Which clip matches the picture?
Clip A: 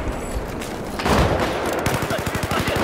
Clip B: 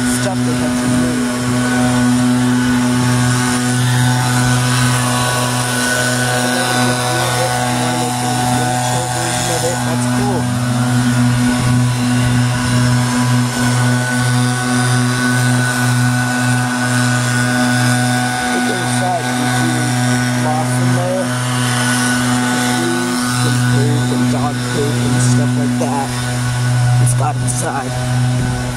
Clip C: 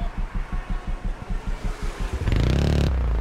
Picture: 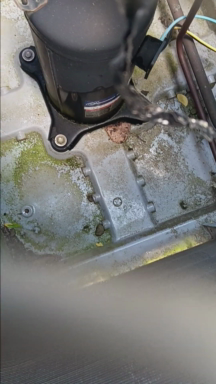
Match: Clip B